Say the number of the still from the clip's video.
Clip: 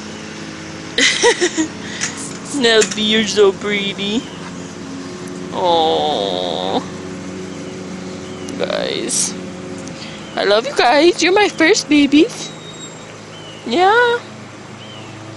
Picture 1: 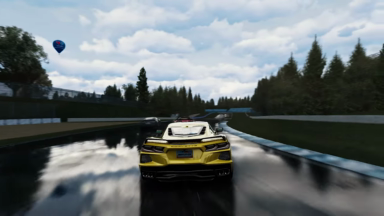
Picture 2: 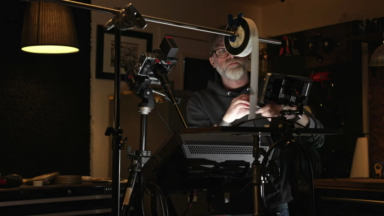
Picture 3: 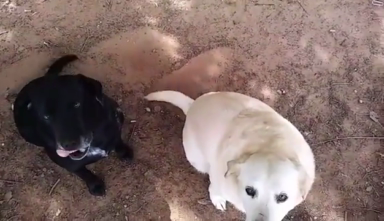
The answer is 3